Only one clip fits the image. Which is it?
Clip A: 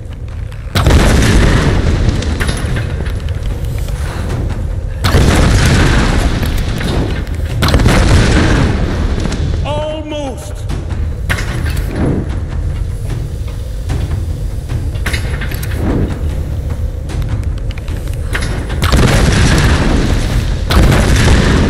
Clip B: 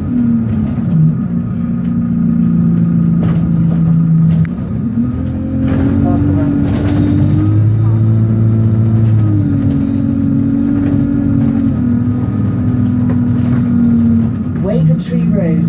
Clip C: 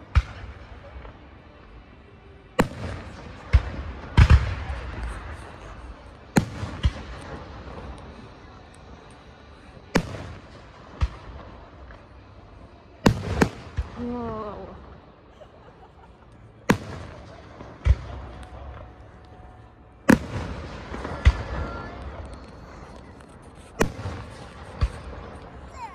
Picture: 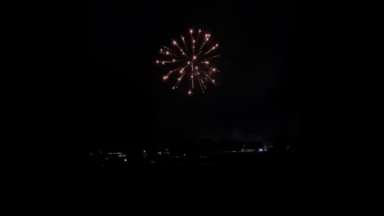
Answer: C